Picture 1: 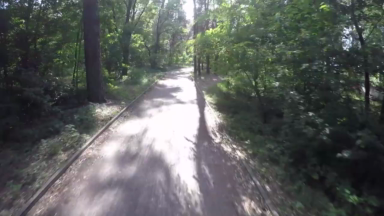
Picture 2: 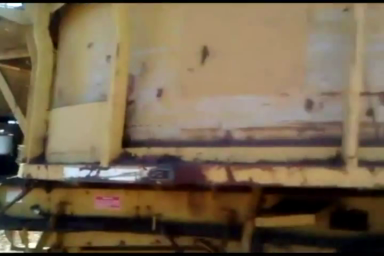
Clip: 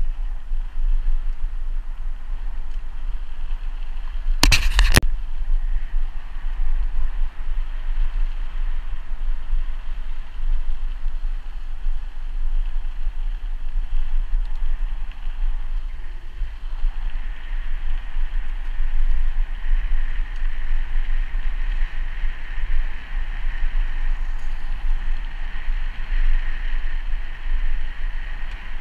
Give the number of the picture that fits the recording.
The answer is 1